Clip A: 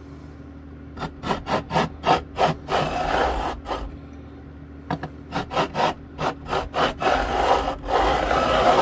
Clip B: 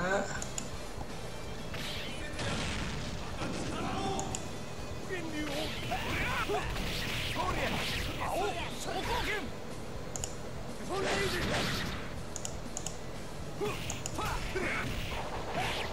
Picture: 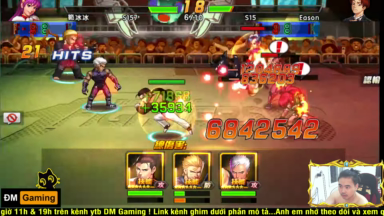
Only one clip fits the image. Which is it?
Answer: B